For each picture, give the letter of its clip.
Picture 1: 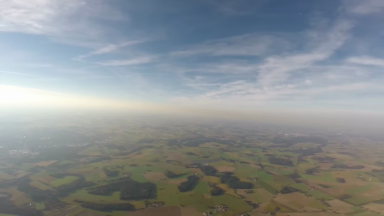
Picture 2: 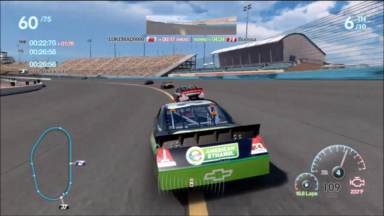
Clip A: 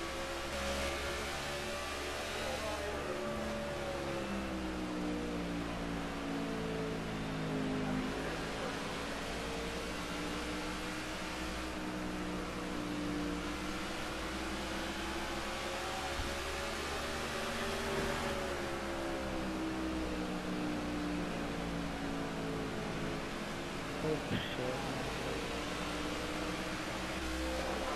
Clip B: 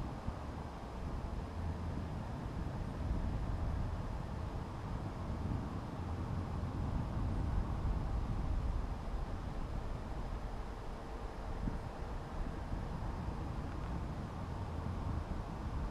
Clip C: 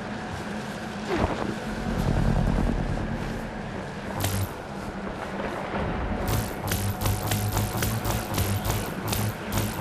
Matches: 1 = B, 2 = A